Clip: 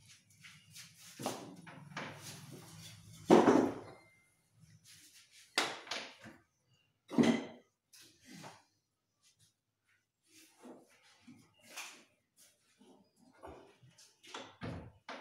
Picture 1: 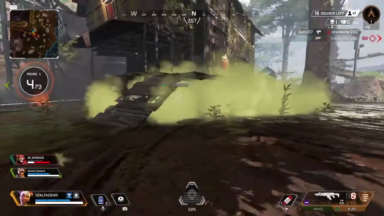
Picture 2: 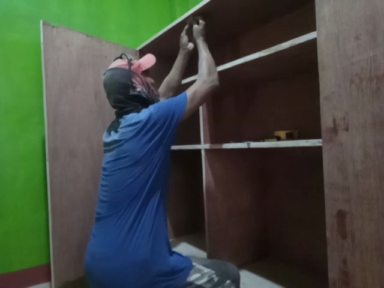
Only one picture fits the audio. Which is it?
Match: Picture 2